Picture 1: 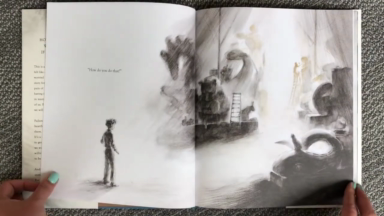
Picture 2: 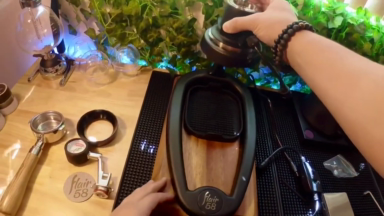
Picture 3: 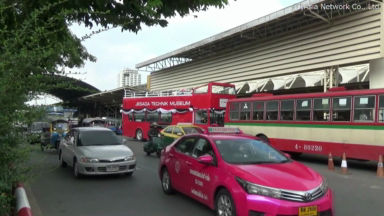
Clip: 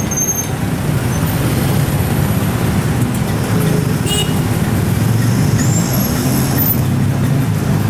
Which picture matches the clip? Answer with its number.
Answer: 3